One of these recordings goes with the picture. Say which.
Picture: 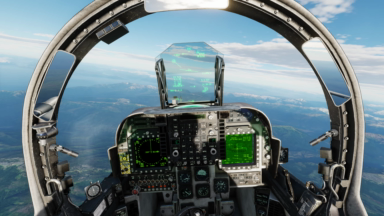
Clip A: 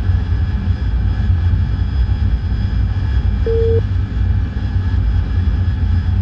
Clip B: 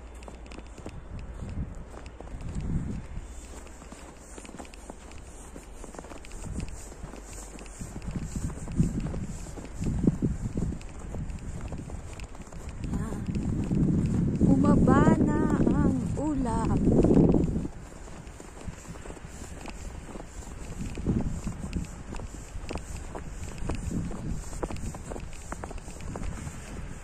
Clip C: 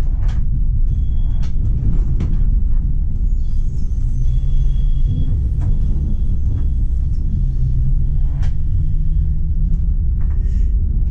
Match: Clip A